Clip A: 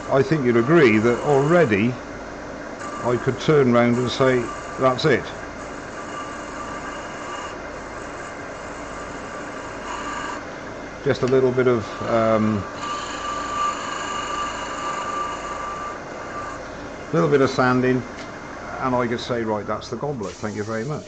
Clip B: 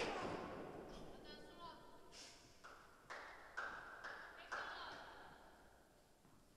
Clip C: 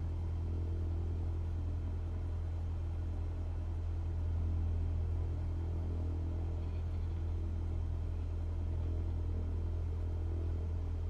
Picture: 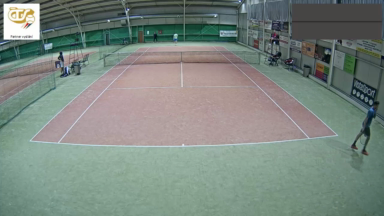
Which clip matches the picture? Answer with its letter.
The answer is B